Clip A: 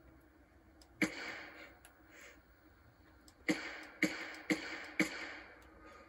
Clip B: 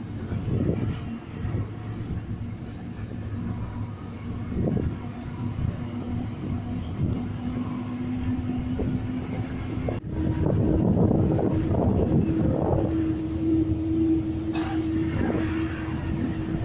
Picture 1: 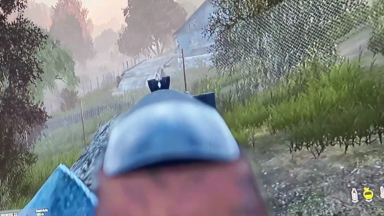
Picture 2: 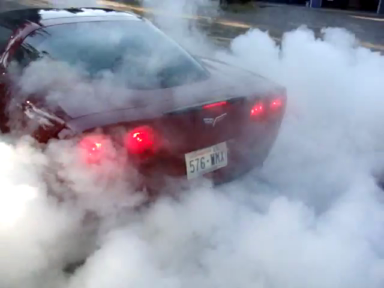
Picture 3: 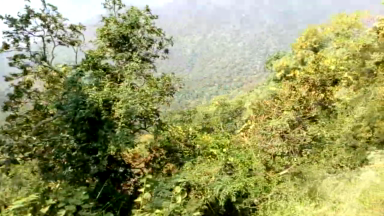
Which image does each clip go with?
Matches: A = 1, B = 3